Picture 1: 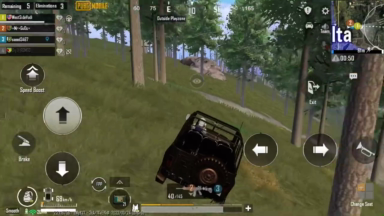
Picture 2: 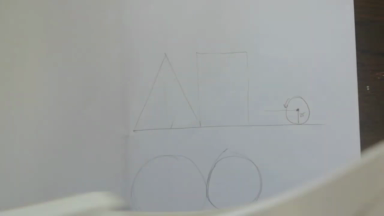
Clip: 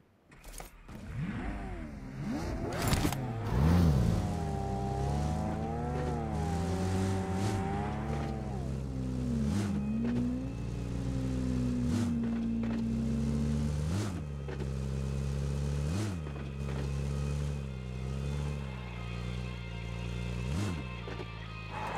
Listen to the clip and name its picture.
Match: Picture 1